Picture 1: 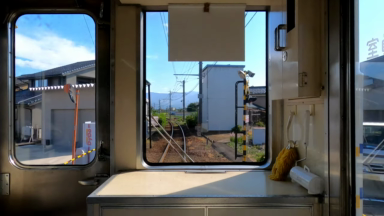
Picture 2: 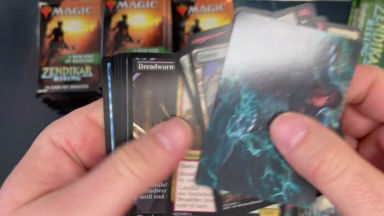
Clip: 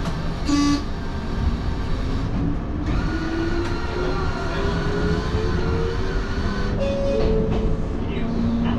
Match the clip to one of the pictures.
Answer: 1